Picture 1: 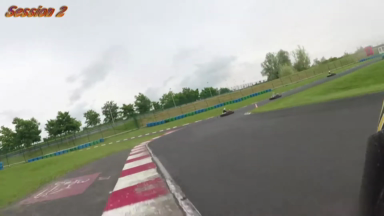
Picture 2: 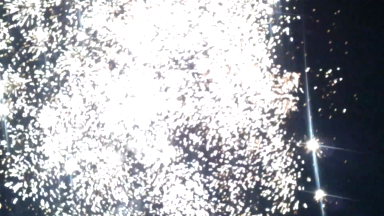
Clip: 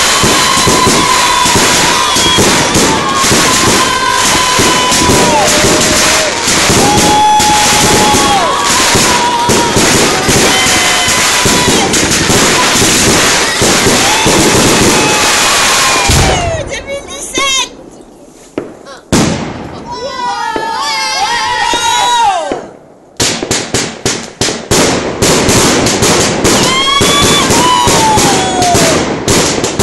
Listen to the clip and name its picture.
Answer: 2